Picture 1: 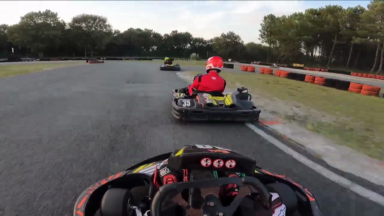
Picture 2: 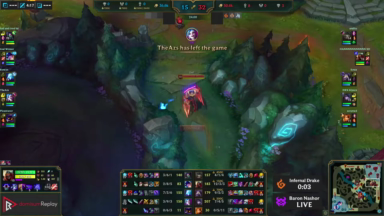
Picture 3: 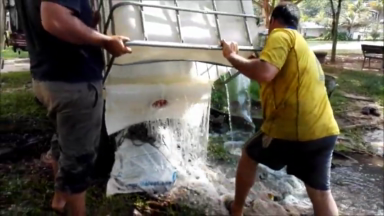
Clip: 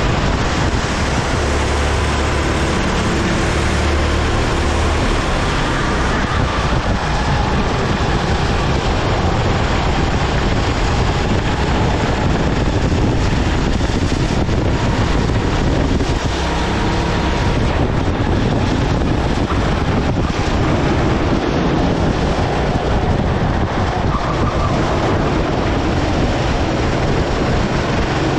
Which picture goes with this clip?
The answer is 1